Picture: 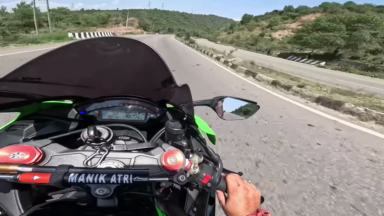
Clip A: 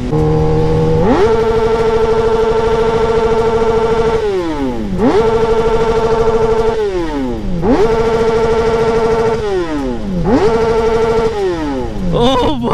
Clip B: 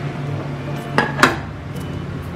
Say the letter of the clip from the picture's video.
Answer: A